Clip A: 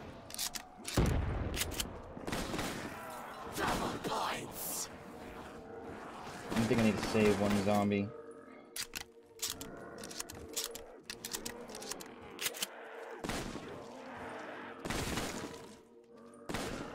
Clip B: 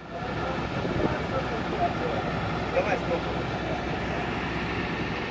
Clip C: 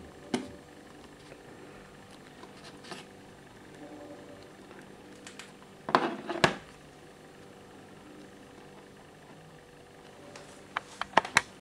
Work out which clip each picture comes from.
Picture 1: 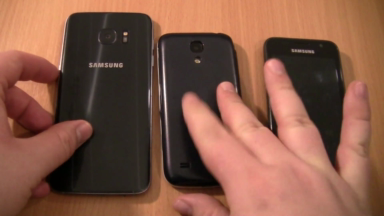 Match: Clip C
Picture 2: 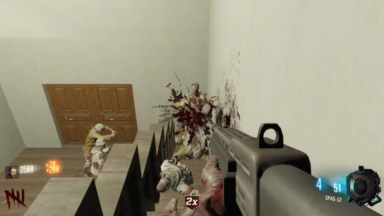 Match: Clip A